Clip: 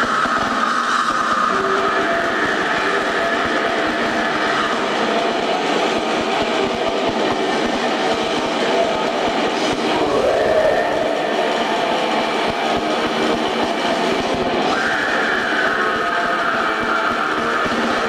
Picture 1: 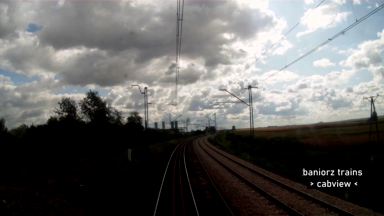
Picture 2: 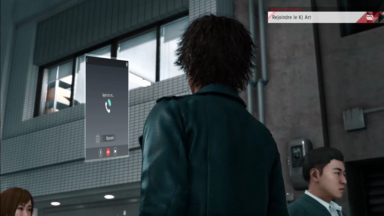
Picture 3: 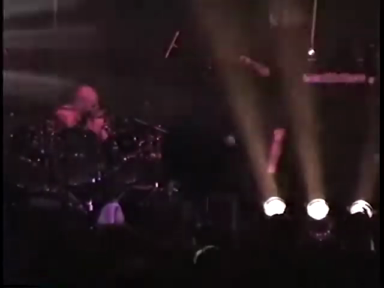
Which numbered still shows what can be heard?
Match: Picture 3